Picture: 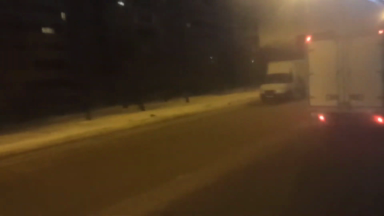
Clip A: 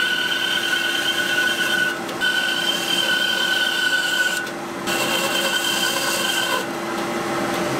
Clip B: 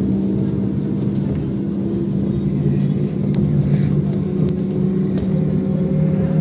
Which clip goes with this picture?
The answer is B